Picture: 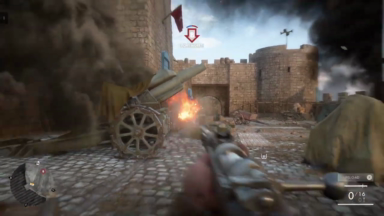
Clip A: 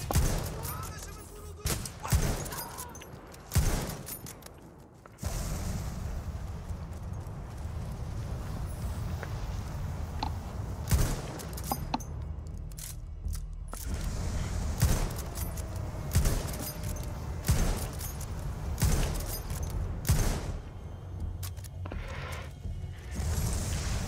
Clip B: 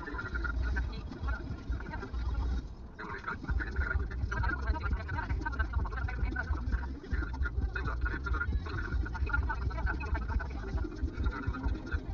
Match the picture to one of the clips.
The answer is A